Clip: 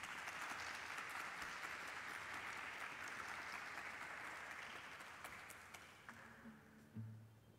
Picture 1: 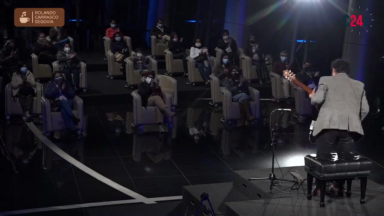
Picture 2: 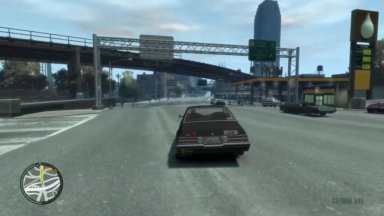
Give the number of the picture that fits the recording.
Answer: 1